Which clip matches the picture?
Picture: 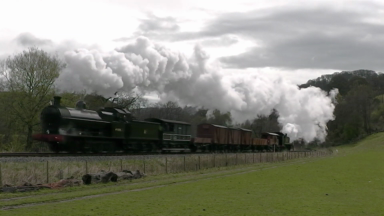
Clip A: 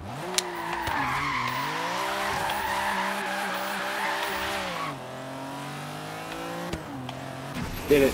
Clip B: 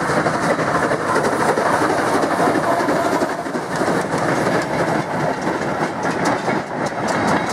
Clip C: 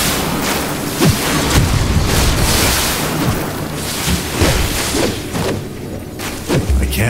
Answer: B